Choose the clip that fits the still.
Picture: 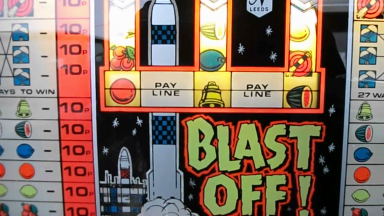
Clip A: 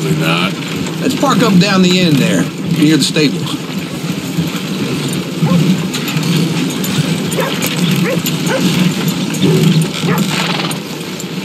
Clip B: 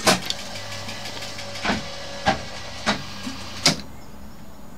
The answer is B